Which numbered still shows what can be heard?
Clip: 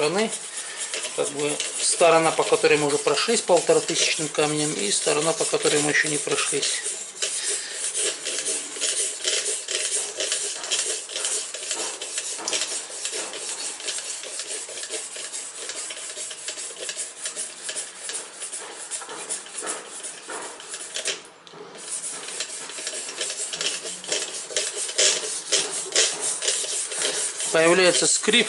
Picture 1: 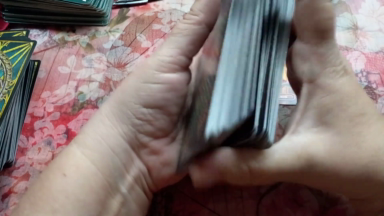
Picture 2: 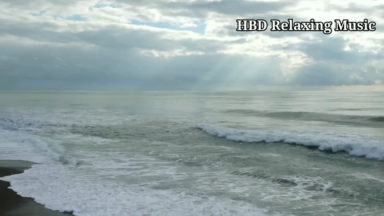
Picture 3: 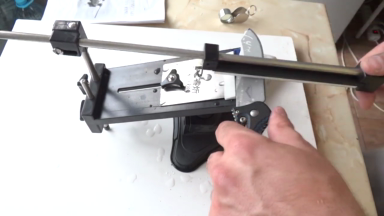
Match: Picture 3